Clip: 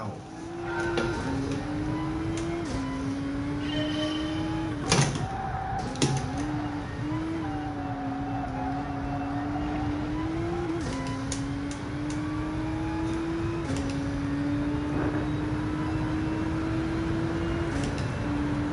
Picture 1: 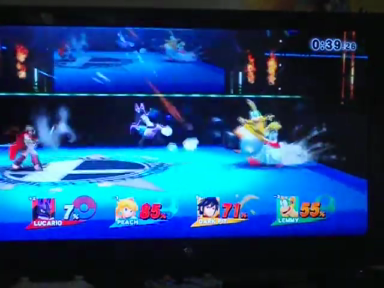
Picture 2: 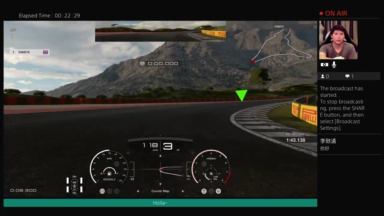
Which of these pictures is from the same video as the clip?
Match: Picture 2